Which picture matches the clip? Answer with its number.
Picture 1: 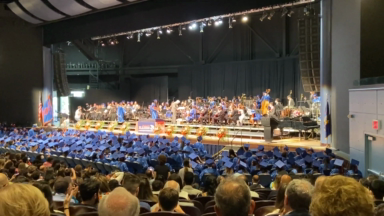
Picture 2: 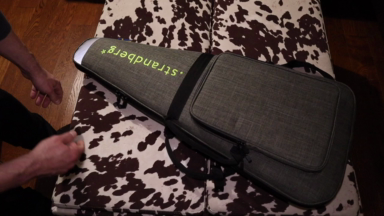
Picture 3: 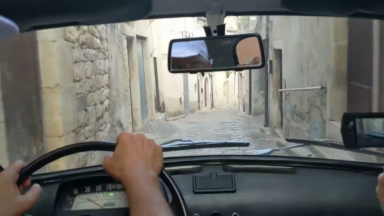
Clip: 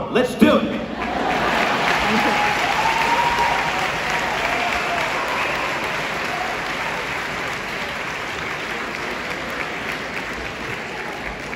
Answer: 1